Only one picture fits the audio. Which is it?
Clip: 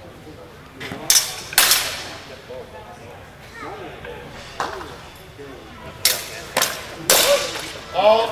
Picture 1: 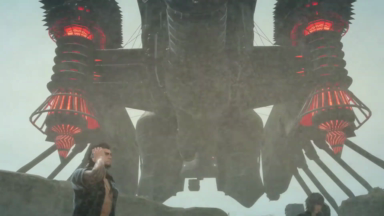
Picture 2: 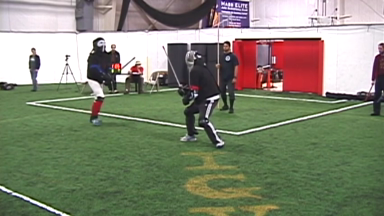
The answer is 2